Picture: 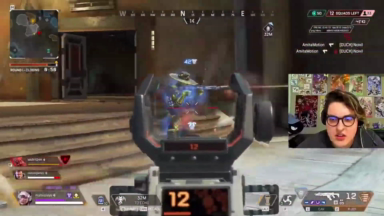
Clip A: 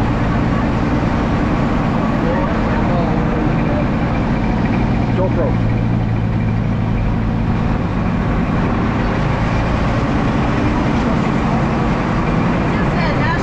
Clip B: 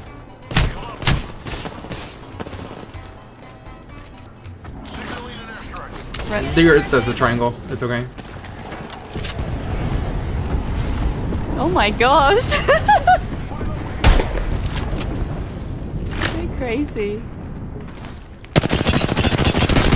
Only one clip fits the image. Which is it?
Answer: B